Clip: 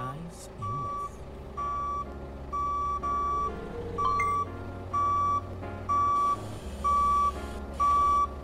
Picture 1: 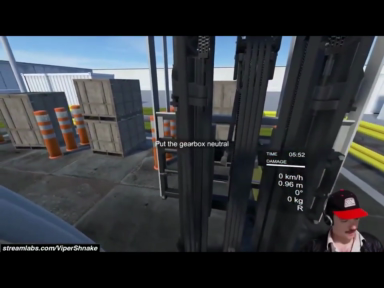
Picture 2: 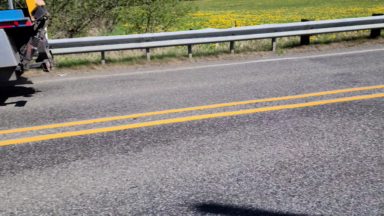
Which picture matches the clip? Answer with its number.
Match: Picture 1